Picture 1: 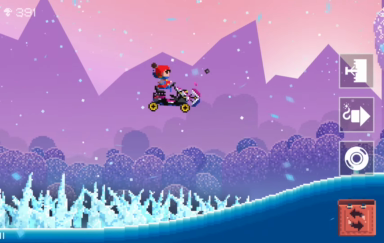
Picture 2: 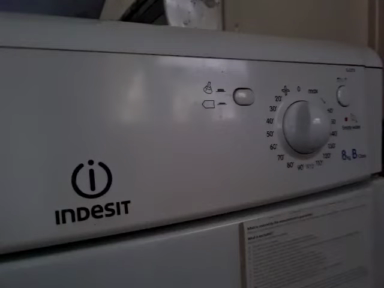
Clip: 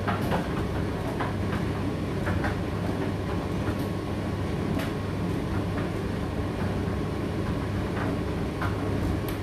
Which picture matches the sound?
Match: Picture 2